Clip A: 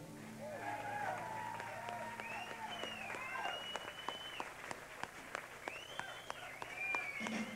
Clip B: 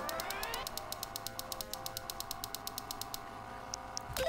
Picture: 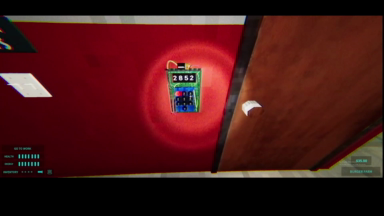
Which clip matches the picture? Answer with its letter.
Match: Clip B